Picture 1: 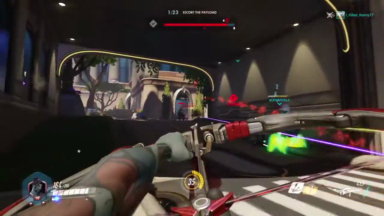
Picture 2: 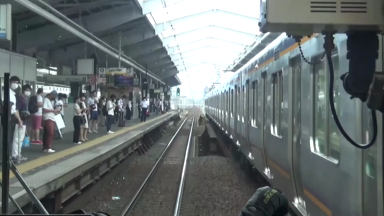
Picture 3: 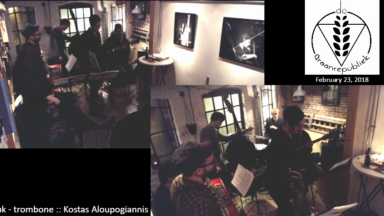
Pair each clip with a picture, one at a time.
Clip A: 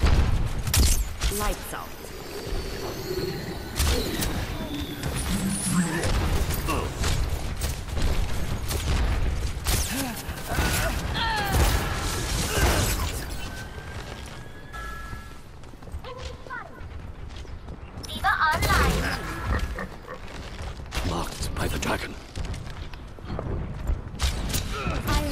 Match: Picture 1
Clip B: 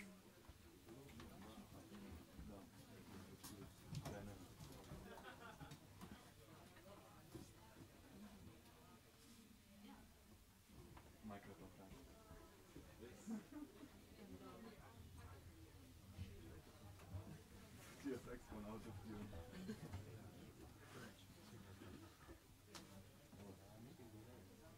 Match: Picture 3